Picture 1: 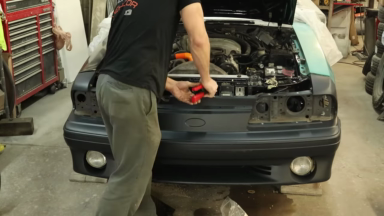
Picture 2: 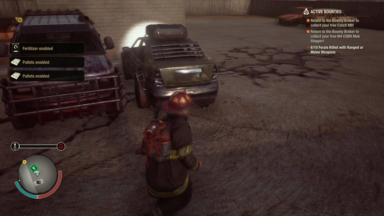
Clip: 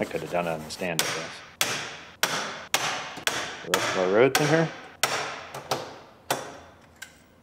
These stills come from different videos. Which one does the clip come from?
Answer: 1